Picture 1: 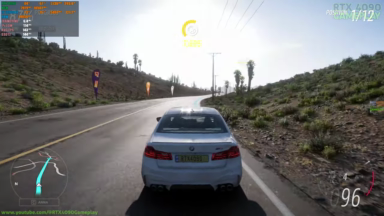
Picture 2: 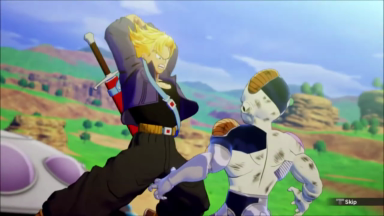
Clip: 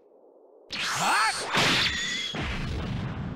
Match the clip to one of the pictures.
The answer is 2